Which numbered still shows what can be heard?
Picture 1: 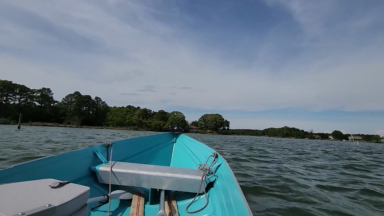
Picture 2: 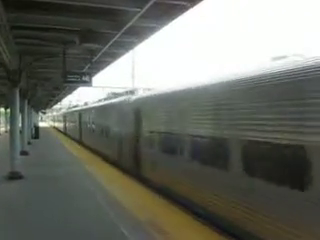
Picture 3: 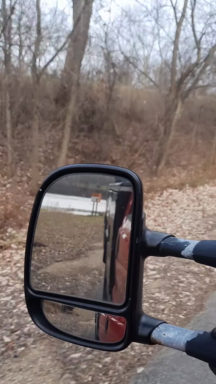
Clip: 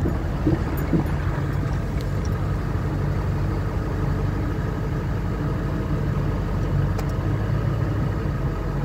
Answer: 3